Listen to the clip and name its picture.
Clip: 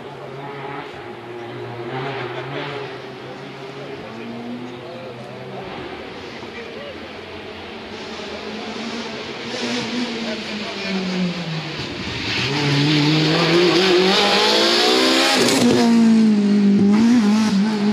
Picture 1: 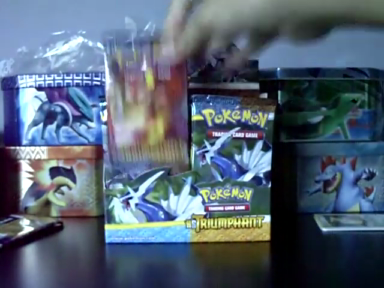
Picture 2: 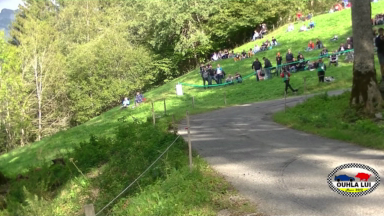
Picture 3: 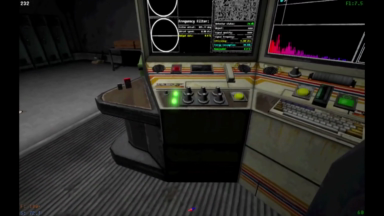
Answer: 2